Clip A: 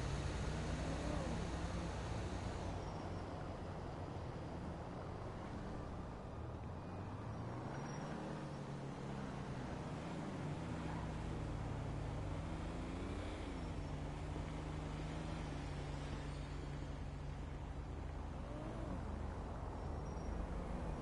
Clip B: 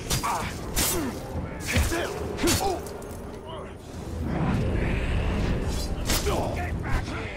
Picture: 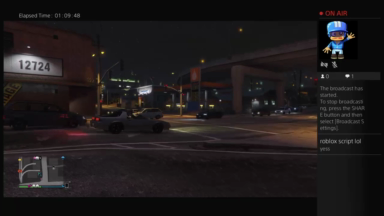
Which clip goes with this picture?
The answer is A